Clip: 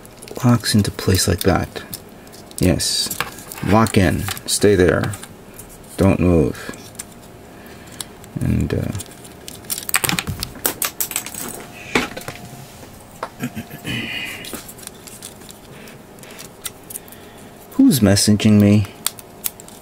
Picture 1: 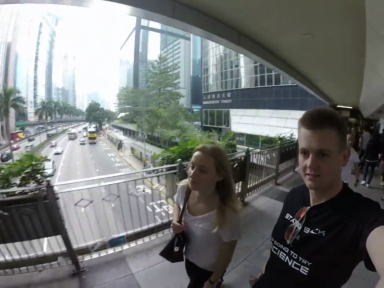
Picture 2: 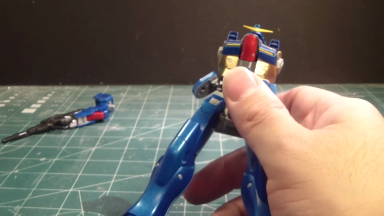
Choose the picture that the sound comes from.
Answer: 2